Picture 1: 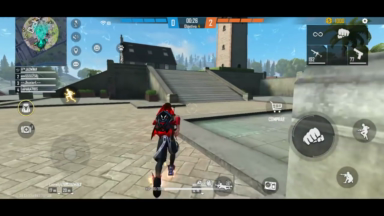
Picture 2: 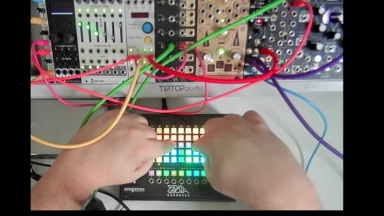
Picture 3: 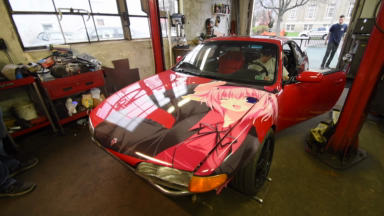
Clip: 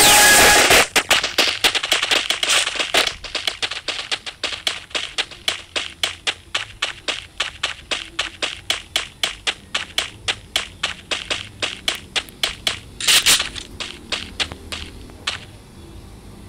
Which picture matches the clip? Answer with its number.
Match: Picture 1